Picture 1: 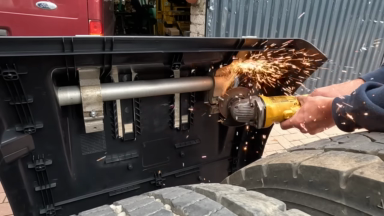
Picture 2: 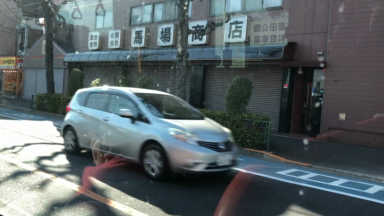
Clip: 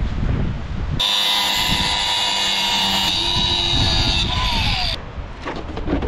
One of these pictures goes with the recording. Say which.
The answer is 1